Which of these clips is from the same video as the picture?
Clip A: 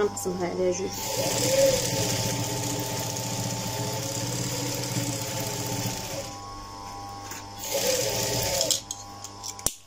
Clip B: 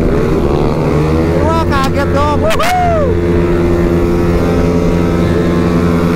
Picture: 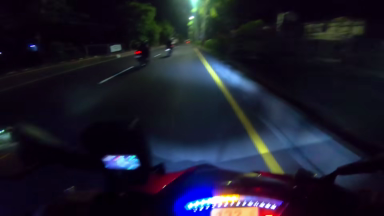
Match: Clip B